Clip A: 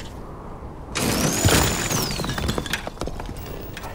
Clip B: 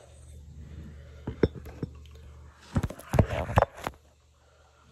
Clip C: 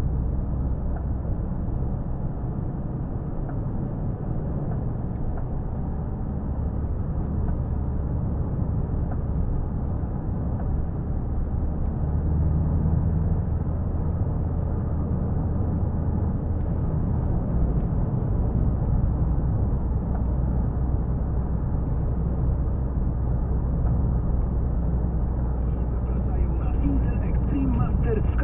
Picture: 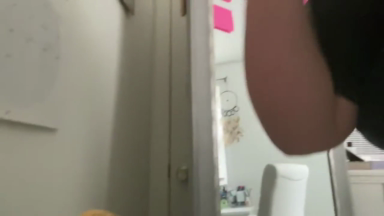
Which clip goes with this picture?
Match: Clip B